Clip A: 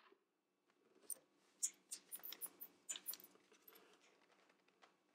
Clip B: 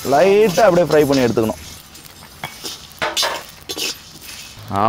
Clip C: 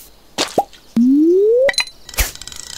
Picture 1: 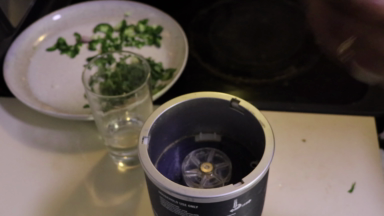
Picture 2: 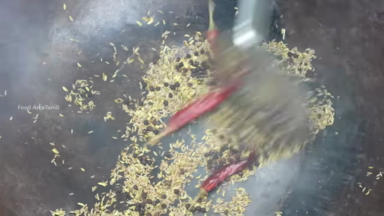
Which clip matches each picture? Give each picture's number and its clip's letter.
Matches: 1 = A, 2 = B